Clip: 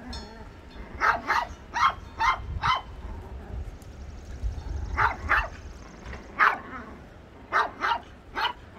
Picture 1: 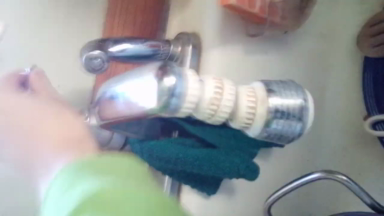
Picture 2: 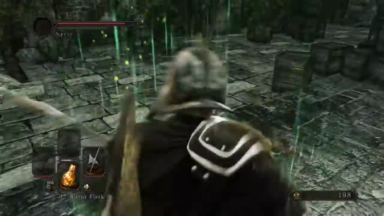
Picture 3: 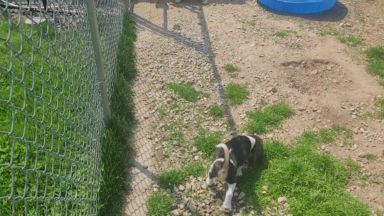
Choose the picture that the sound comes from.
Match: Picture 3